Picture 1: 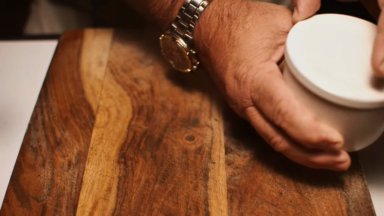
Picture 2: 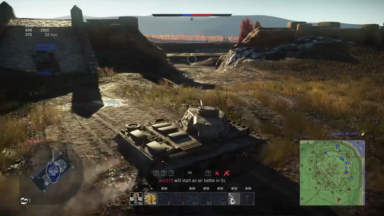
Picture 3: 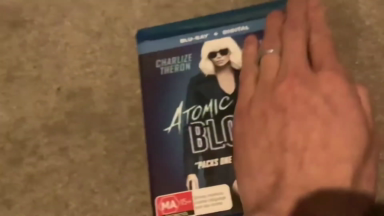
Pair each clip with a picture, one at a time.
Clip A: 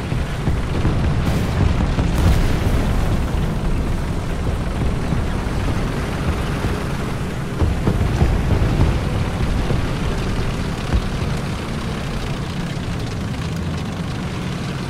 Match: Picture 2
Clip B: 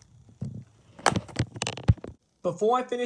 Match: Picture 3